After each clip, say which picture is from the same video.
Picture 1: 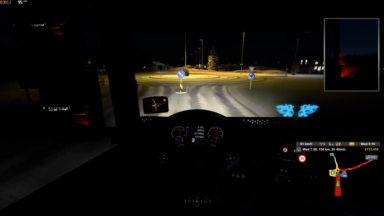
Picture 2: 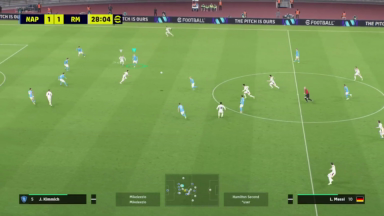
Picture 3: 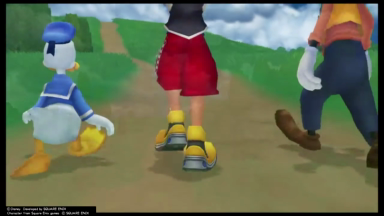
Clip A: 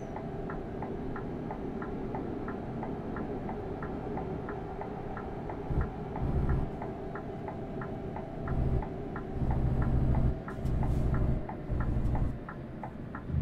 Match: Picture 1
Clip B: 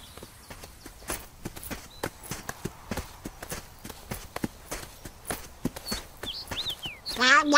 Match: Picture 3